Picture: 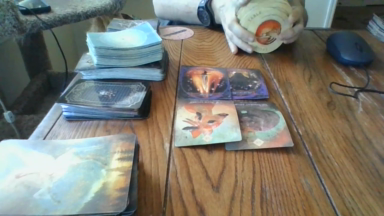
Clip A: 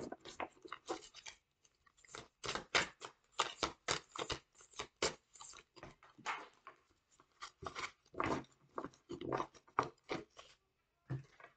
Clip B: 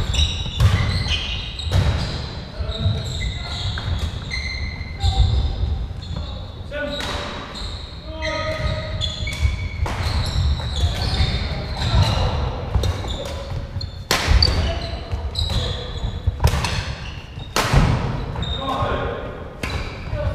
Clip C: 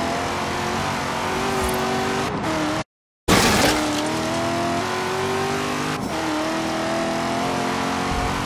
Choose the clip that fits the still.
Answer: A